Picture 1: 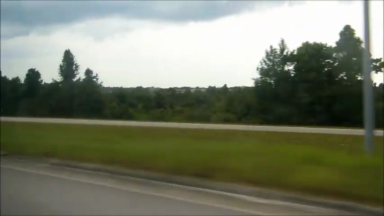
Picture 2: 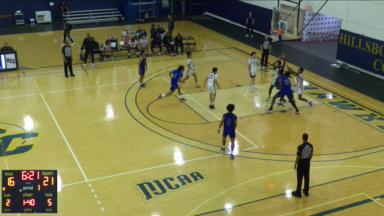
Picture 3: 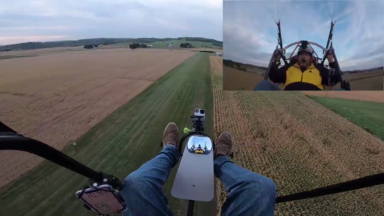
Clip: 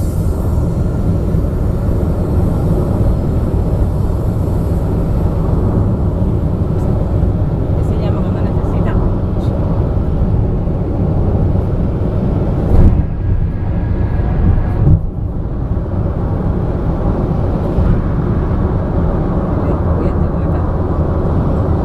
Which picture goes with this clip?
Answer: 1